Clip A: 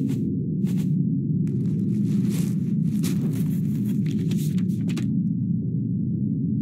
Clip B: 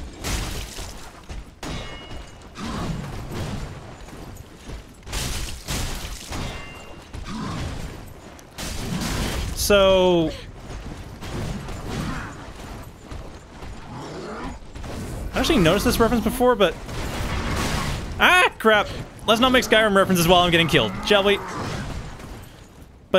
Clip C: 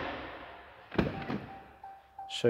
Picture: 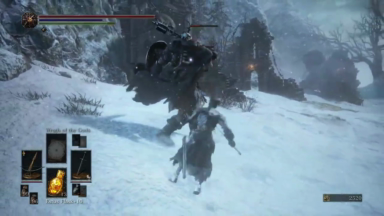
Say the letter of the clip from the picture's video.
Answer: B